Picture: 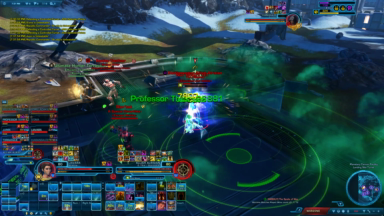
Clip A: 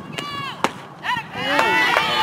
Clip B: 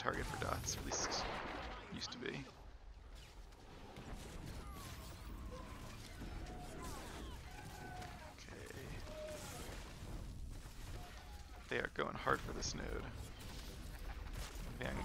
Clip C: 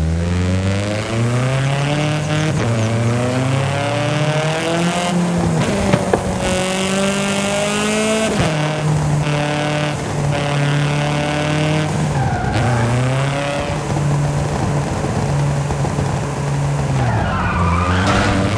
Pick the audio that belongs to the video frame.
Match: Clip B